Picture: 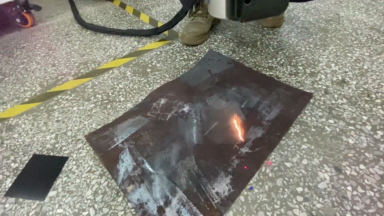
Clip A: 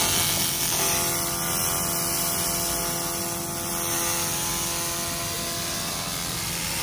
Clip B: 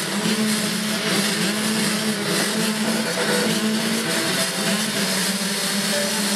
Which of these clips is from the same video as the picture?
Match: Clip A